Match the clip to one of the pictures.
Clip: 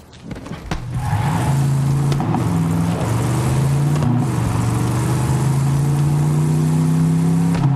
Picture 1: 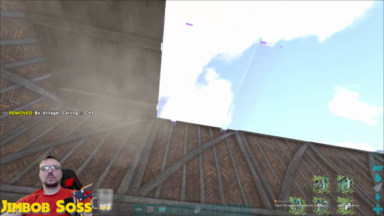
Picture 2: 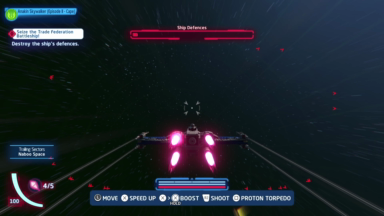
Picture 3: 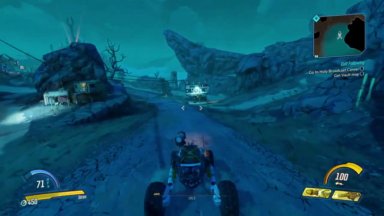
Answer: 3